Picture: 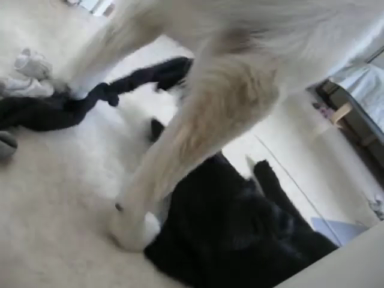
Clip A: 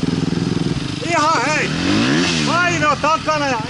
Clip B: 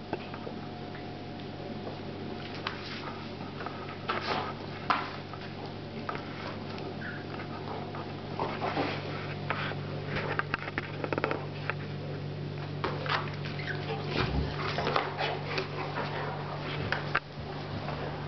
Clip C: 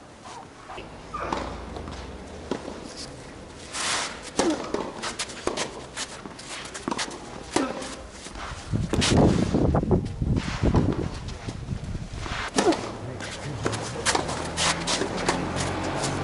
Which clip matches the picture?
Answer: B